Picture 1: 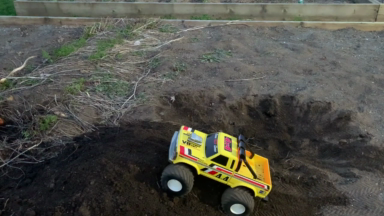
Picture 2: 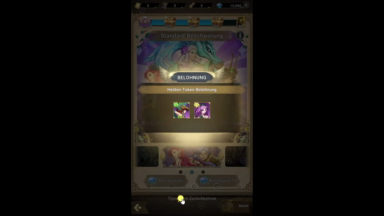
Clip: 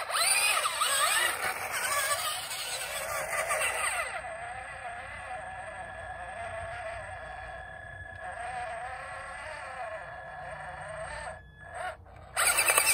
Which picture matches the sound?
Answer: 1